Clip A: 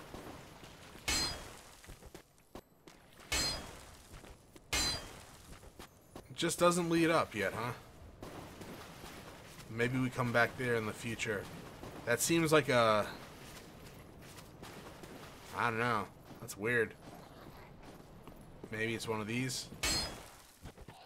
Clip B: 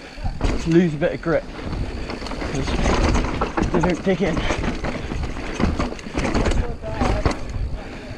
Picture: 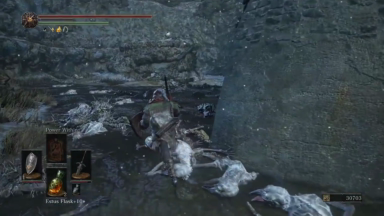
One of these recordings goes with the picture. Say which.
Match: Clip A